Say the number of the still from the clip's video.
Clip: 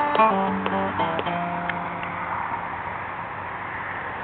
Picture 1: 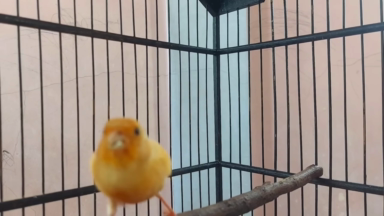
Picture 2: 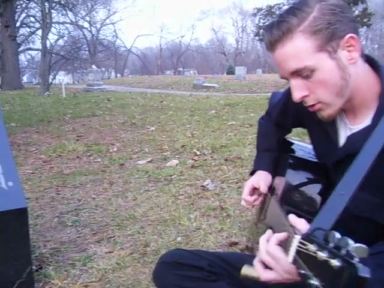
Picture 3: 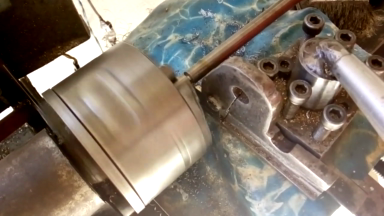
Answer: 2